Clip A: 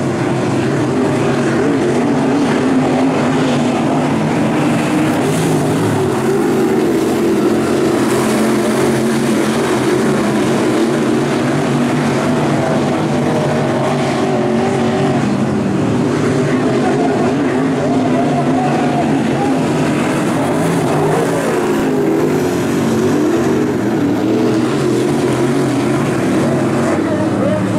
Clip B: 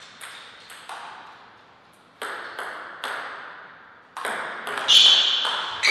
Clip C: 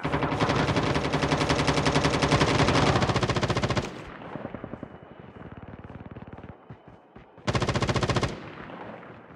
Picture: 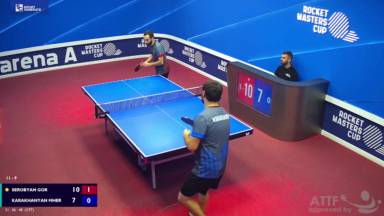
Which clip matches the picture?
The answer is B